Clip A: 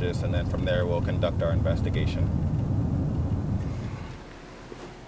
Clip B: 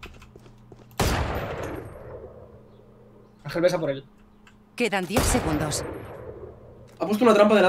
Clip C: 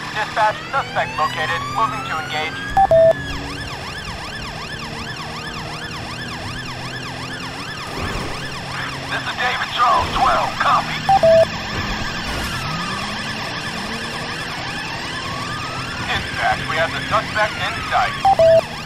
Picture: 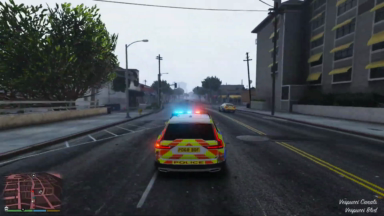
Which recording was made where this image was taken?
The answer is C